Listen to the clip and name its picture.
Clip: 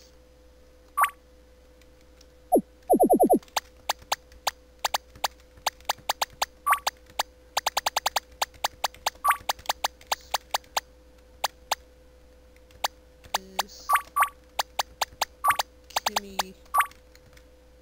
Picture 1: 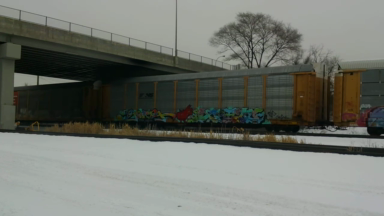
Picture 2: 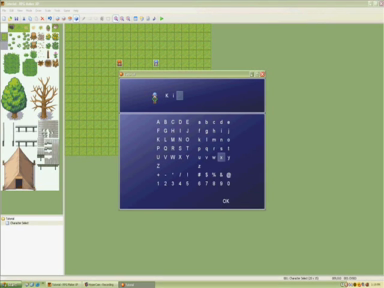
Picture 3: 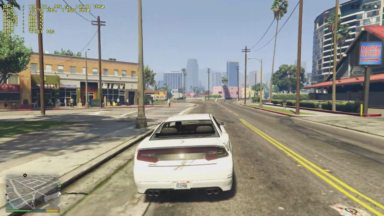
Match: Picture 2